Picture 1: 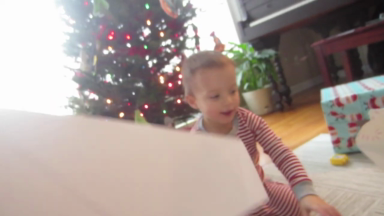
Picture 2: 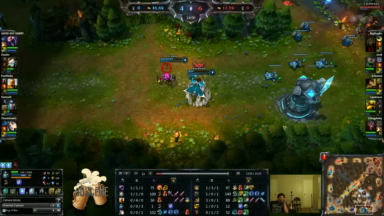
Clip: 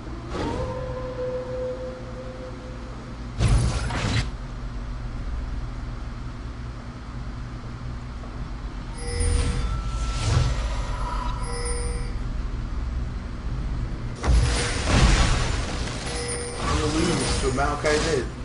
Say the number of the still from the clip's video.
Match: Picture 2